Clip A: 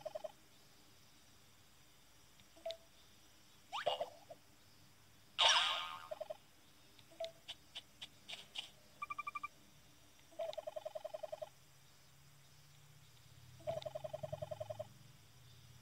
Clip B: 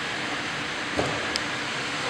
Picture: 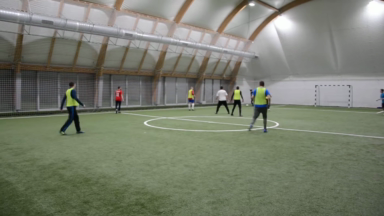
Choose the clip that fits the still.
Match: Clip B